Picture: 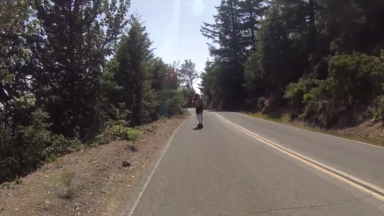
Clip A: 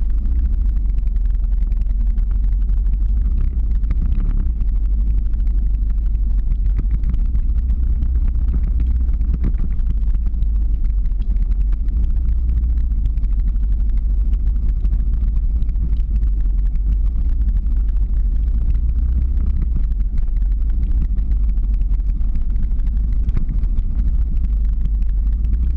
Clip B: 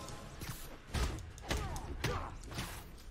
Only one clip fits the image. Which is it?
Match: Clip A